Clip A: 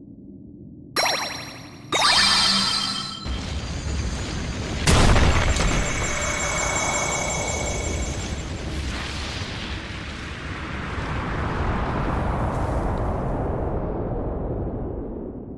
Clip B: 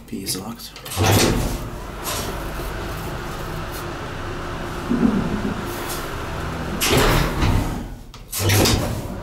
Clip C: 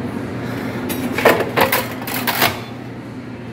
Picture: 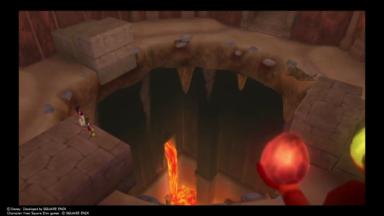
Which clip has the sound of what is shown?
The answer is A